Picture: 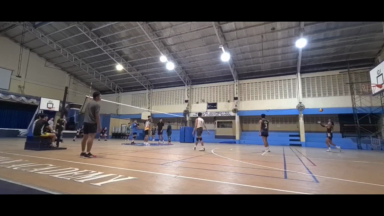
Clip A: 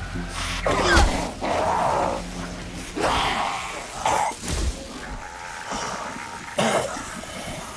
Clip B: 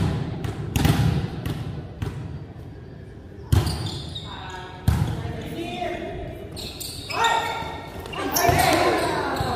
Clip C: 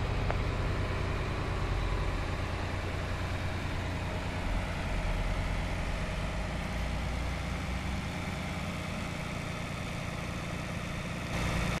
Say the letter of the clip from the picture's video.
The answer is B